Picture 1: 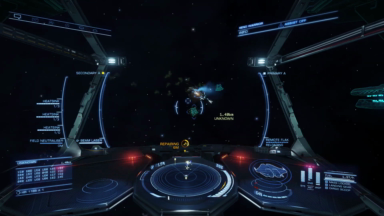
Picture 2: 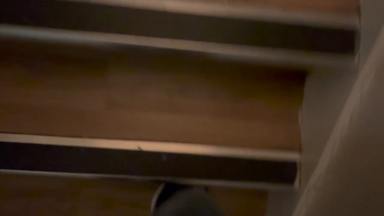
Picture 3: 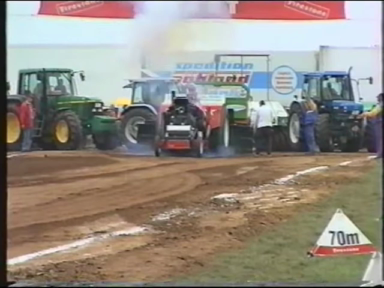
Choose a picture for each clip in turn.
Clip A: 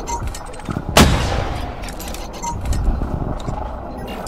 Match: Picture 1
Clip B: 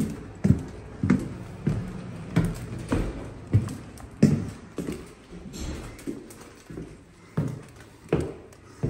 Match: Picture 2